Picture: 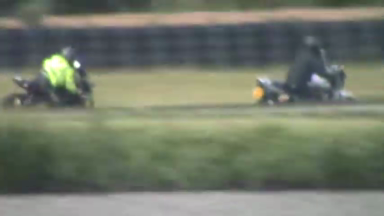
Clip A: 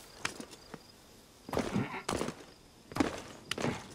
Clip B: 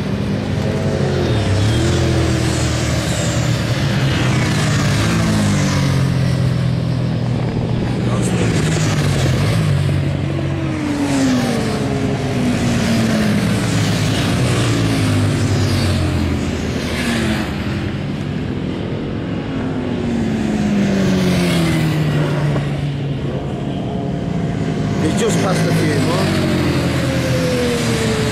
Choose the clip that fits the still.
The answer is B